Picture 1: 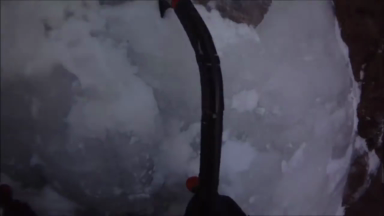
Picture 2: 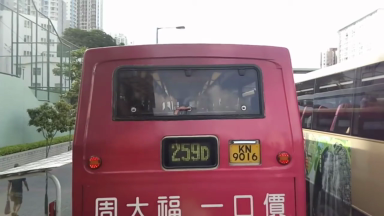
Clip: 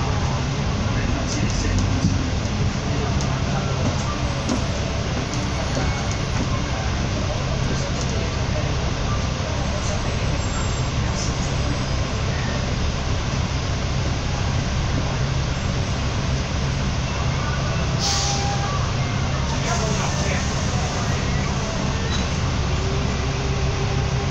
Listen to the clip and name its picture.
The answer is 2